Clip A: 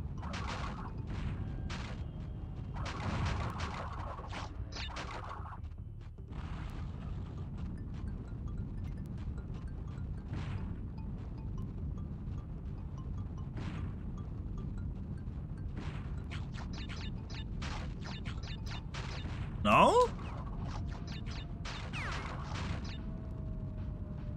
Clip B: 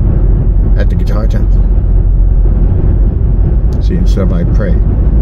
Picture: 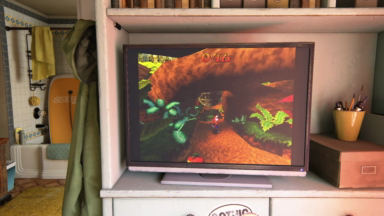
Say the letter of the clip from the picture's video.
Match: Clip A